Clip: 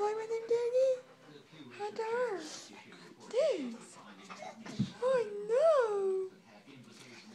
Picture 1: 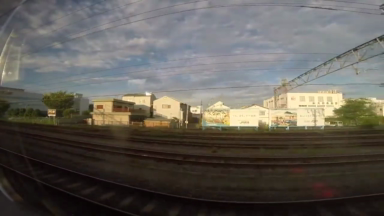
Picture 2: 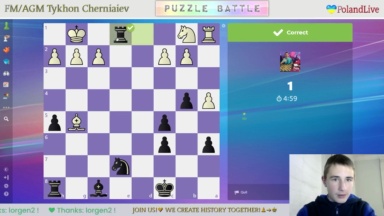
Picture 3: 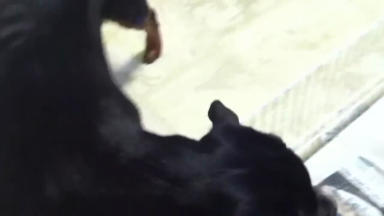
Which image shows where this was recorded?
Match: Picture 3